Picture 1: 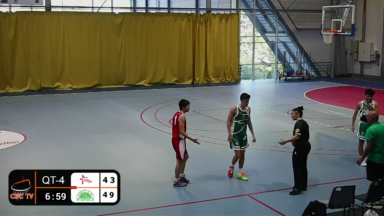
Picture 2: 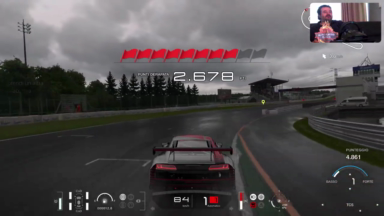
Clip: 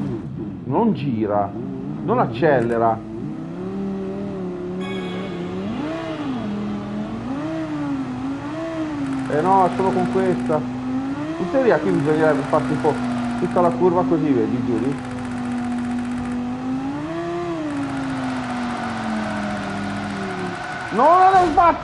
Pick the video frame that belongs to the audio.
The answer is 2